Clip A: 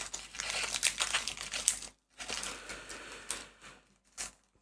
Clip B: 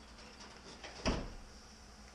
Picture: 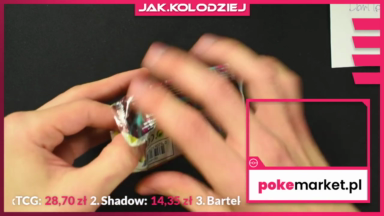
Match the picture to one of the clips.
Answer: A